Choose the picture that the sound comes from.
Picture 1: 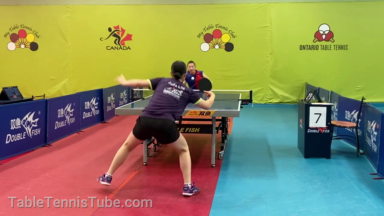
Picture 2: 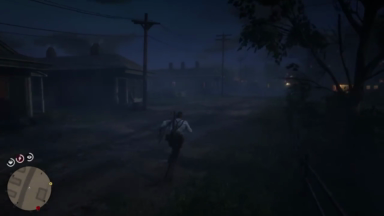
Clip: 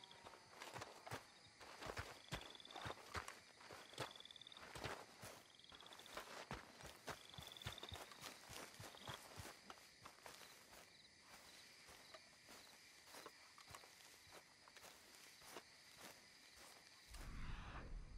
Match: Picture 2